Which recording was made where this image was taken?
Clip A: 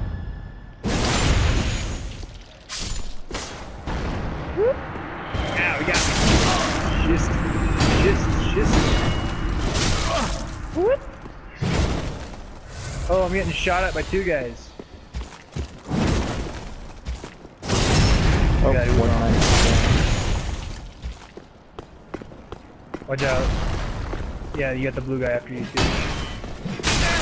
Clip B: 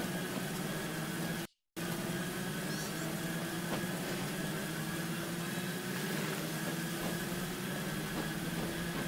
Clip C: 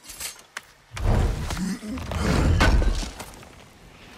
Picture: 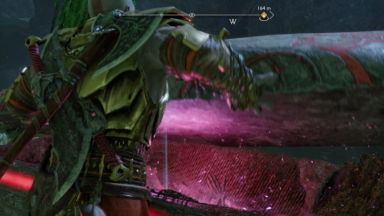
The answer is C